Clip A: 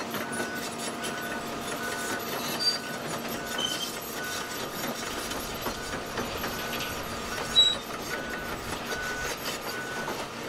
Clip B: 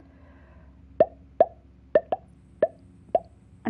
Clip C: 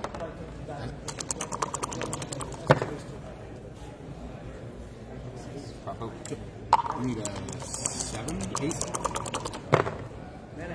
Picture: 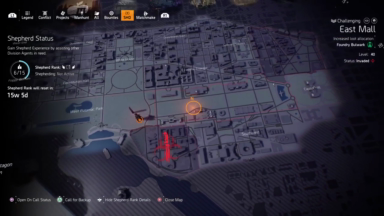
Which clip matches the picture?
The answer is B